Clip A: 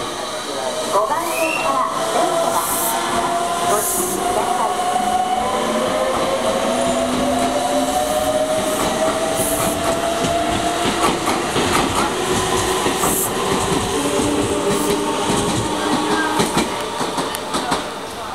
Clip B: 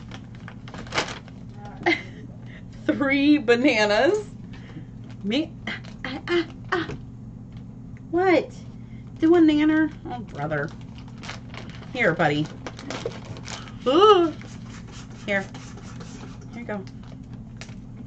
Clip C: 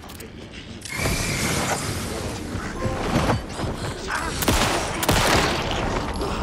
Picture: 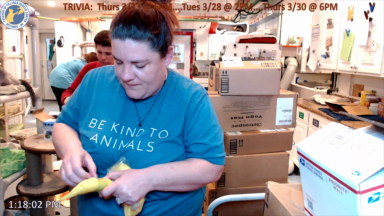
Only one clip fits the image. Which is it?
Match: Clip B